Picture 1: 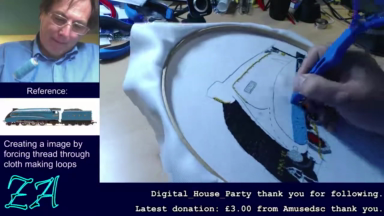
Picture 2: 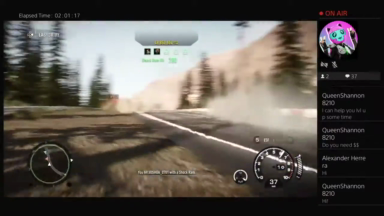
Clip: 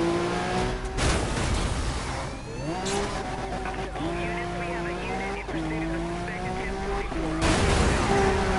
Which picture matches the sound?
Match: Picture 2